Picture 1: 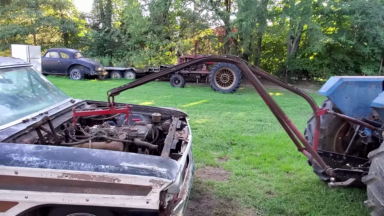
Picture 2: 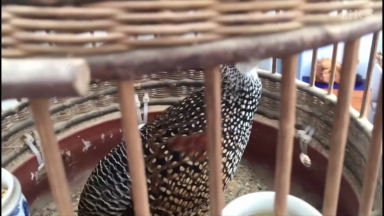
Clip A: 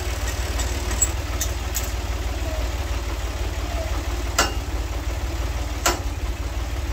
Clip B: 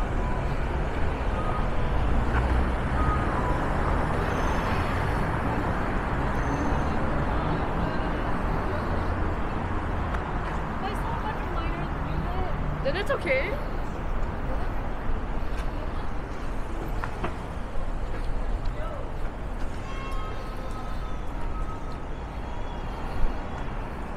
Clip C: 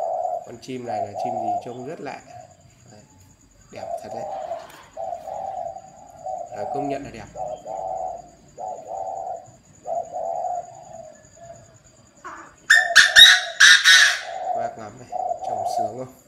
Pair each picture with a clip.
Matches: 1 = A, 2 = C